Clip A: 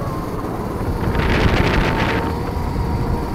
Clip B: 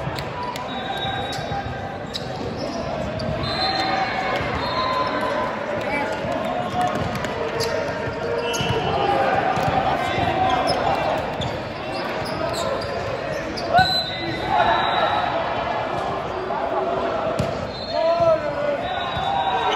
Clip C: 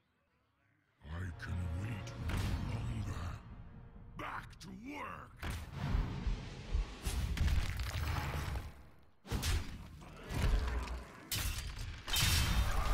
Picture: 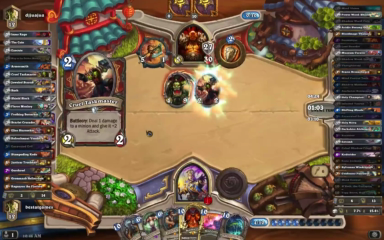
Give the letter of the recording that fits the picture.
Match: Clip C